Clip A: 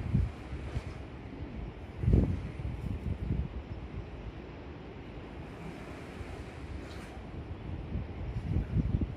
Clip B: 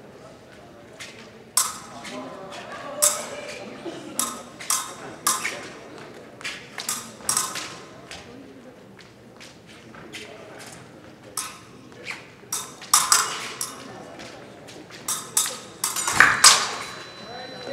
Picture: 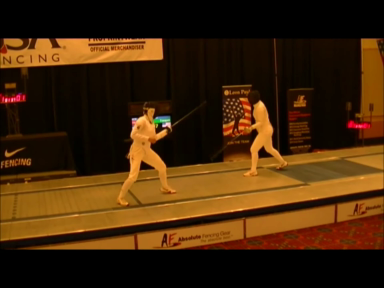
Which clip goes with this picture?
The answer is B